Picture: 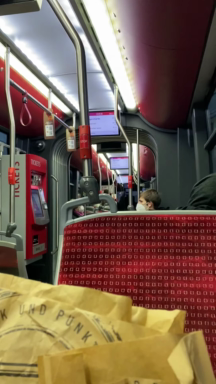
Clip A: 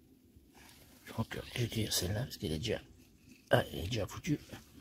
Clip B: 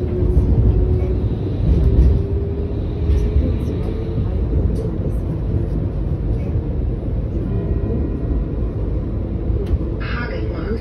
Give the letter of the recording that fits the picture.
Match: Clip B